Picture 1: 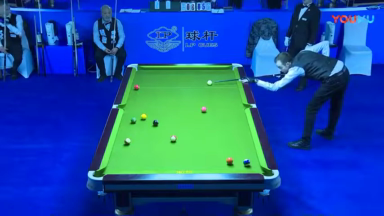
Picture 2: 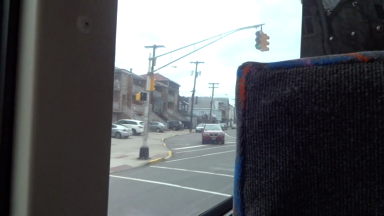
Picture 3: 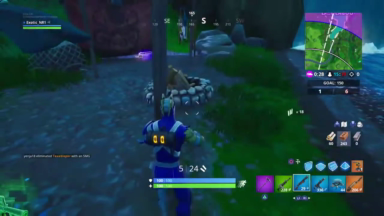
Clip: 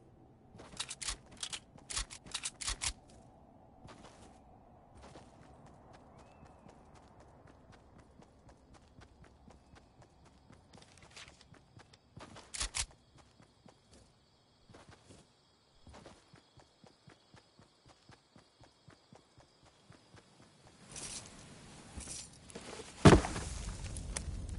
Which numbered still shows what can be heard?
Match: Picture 3